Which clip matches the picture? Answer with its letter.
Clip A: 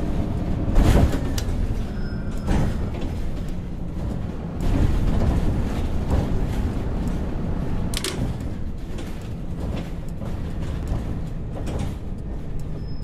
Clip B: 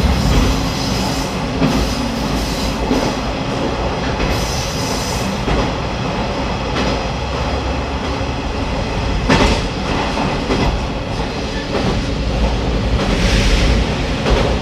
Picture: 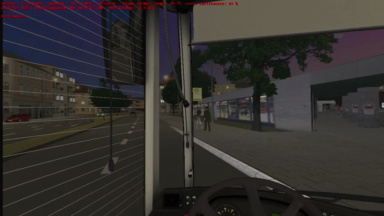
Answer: A